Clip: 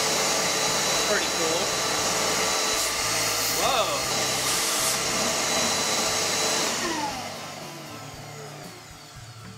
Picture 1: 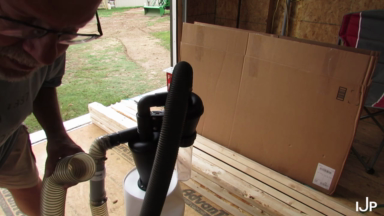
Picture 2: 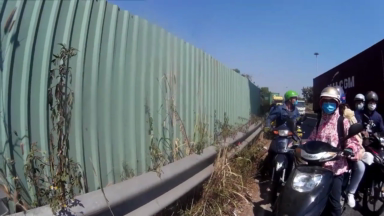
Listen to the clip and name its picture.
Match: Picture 1